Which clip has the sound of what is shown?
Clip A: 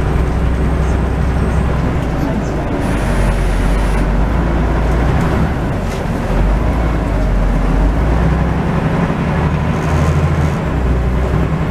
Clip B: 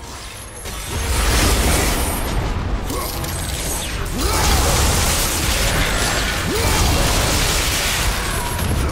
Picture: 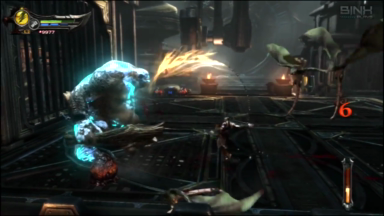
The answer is B